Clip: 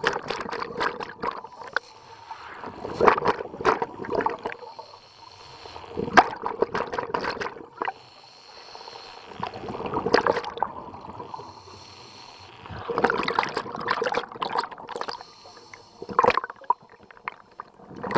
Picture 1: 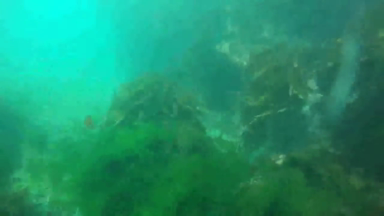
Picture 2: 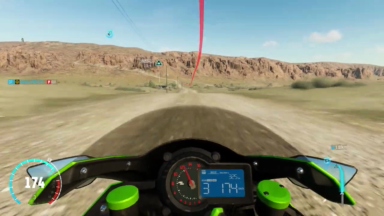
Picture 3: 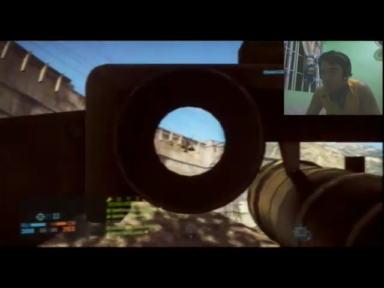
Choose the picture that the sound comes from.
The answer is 1